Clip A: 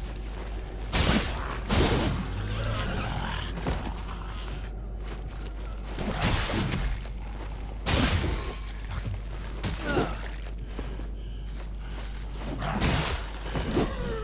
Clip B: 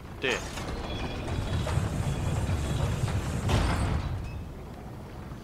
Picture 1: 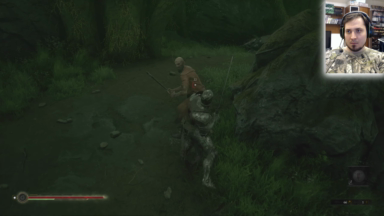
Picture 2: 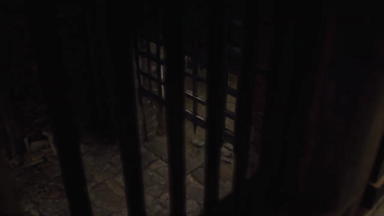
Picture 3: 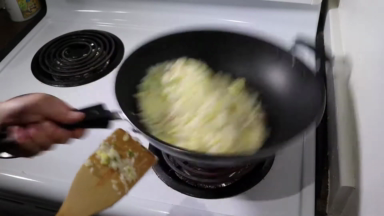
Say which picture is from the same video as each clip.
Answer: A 1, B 2